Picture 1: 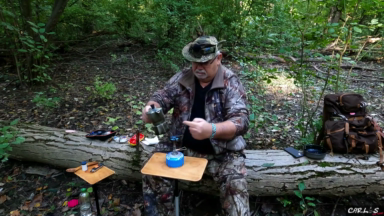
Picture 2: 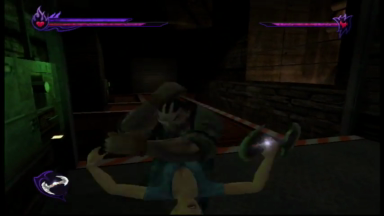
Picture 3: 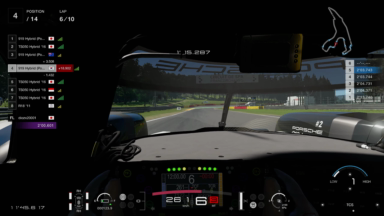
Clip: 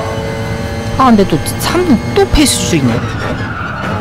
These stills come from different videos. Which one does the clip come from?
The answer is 3